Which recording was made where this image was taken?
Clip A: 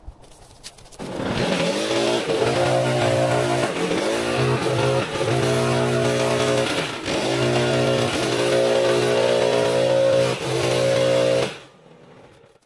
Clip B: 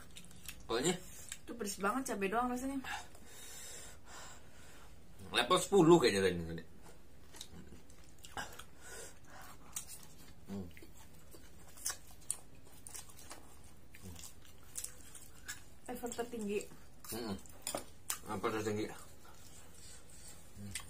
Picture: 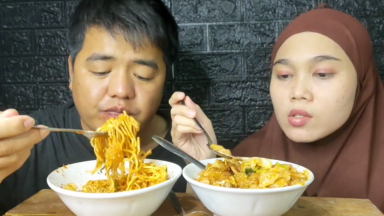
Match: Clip B